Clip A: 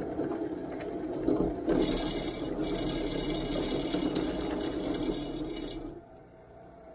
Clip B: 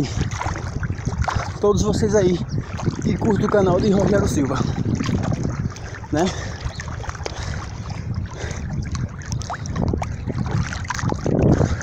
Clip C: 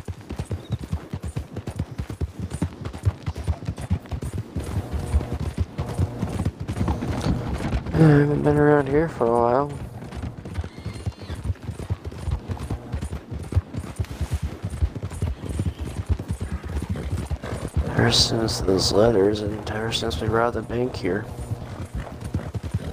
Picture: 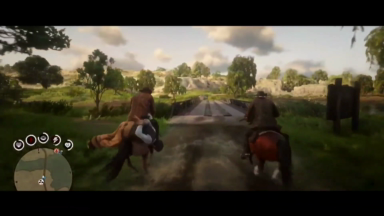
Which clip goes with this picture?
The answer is C